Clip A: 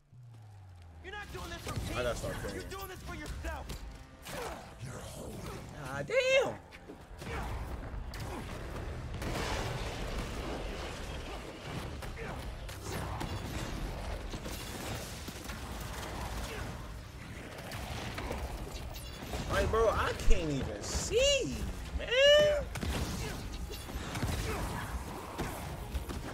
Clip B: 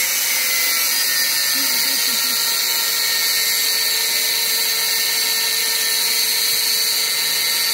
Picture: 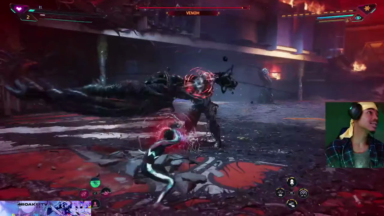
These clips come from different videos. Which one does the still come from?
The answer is A